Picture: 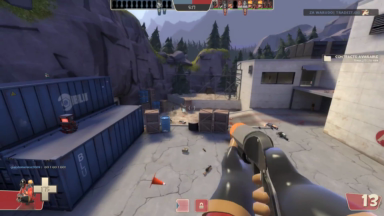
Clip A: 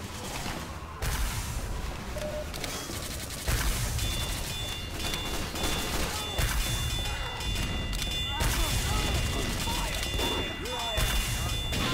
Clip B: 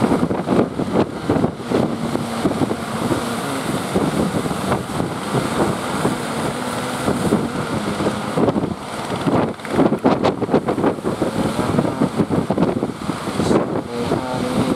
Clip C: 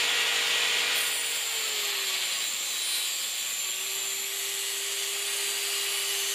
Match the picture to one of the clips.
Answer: A